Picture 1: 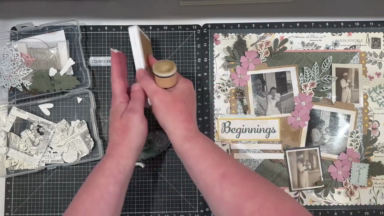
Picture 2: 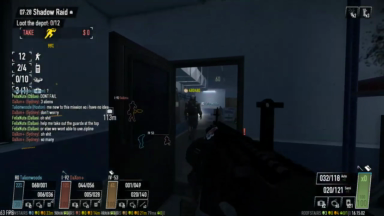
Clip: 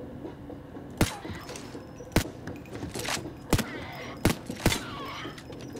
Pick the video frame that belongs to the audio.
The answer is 2